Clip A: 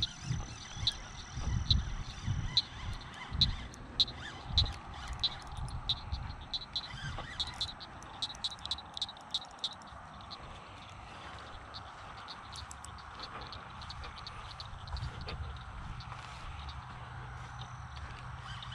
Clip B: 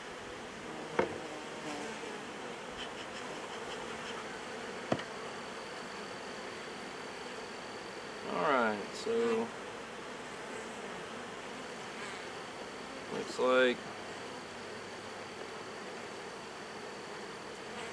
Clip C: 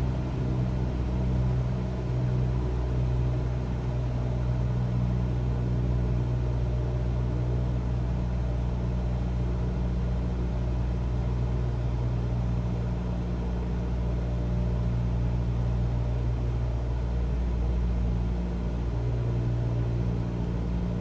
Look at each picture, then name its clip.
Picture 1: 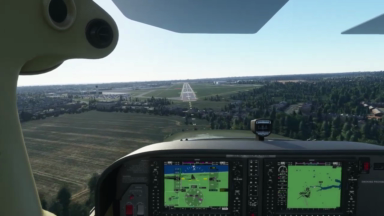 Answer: C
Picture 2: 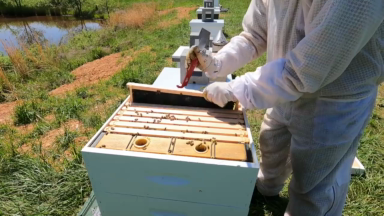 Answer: B